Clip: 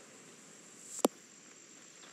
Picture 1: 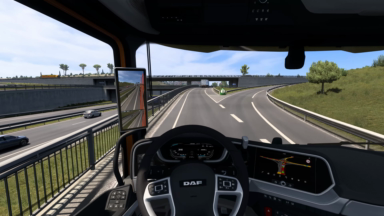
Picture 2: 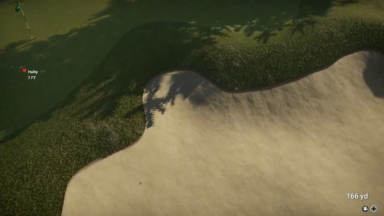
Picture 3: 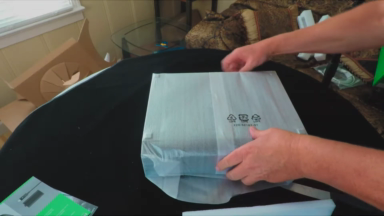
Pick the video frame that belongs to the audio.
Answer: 2